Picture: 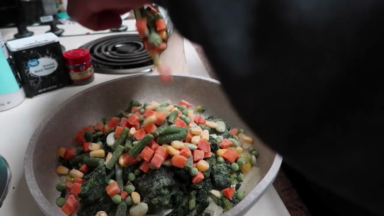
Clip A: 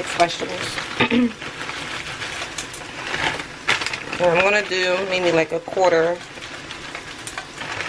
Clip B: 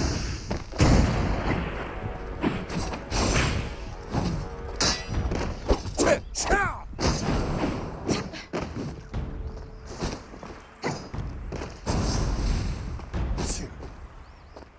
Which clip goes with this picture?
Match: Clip A